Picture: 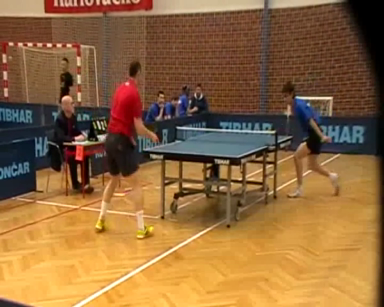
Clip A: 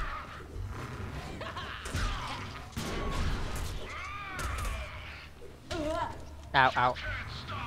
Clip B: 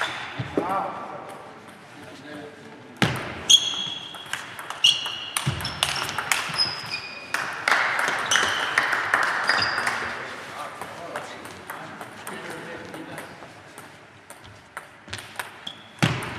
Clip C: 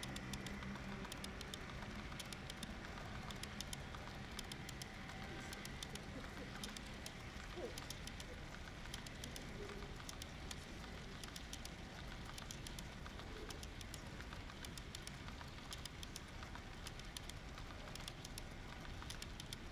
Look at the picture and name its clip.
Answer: B